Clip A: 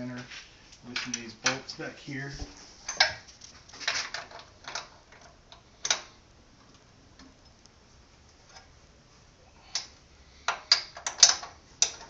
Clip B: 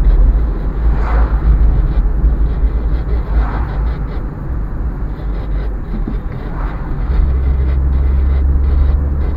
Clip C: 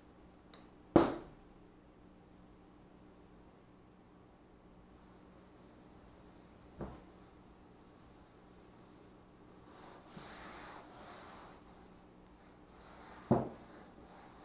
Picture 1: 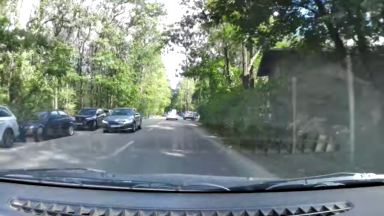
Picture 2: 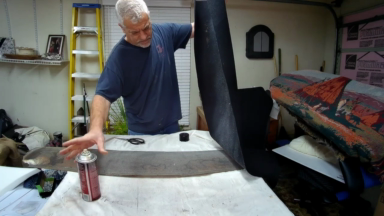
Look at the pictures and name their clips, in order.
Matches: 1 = B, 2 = C